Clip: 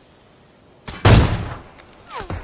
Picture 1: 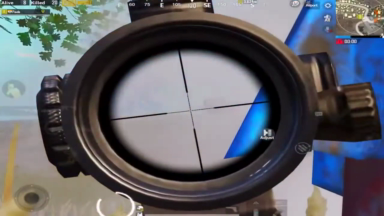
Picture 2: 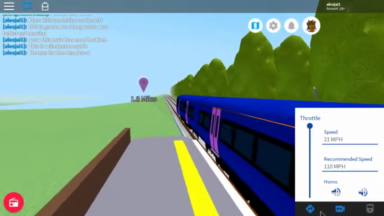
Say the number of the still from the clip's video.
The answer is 1